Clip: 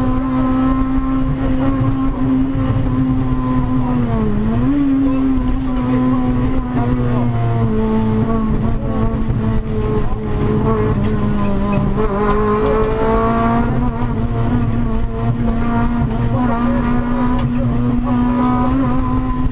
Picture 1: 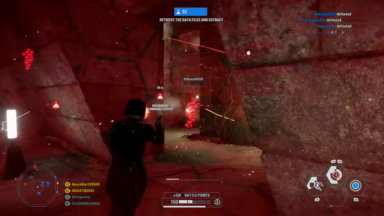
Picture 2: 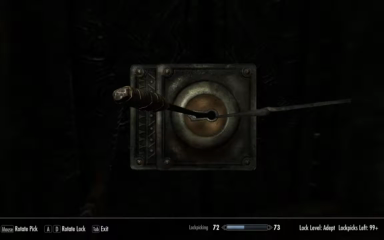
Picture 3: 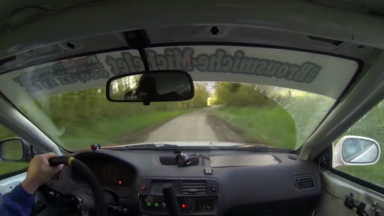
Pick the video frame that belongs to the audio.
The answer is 3